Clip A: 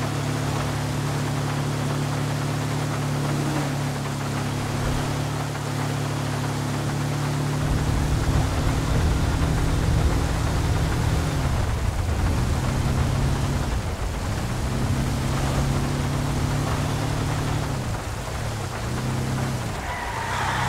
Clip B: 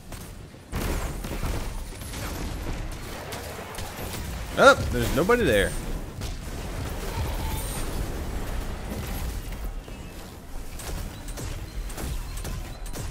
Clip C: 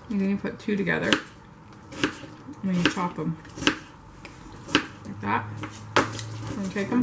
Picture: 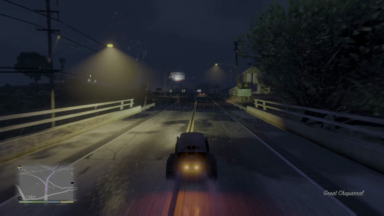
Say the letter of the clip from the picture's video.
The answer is A